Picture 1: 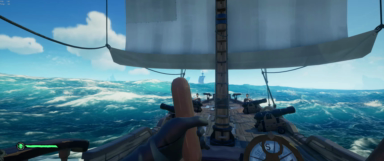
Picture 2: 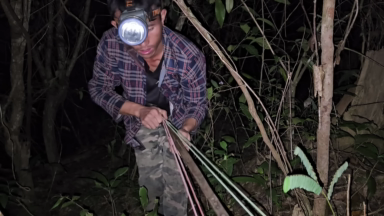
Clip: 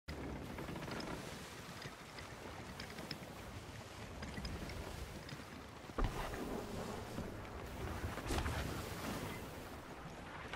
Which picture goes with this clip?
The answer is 1